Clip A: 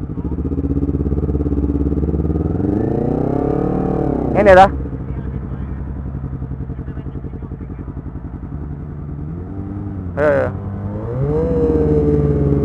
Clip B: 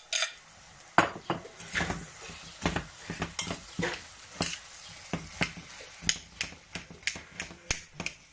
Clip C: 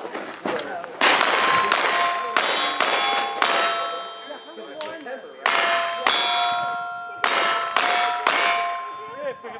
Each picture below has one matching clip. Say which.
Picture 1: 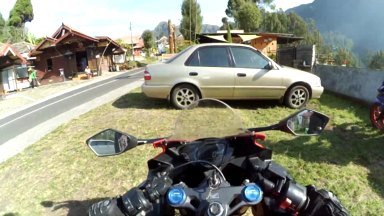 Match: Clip A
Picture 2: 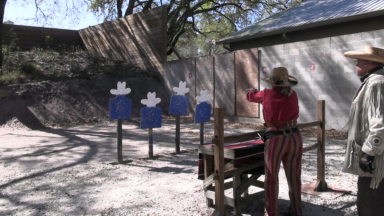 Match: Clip C